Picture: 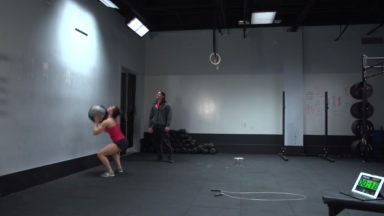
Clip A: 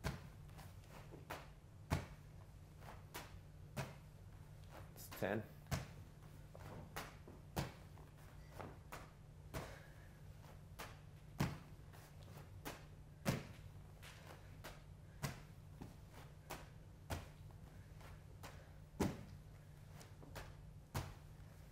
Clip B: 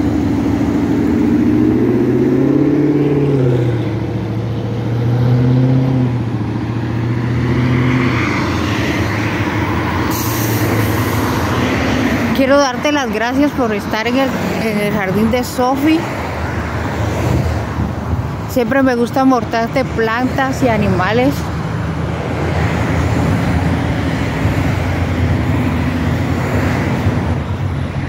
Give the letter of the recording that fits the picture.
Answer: A